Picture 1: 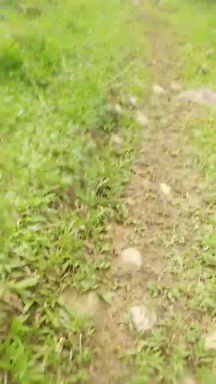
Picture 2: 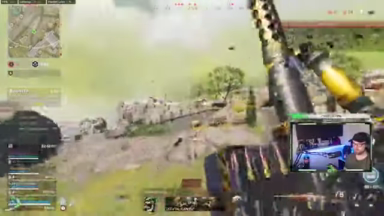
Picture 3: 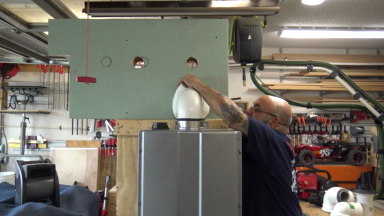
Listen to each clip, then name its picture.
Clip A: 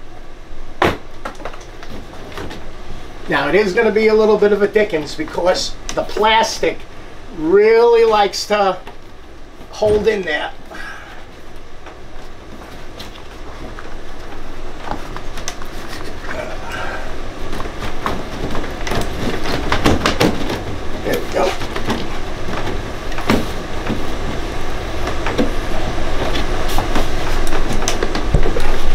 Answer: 3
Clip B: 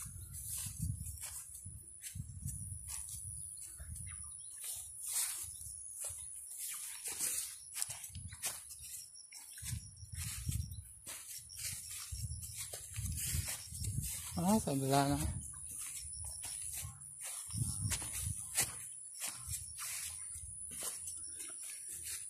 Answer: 1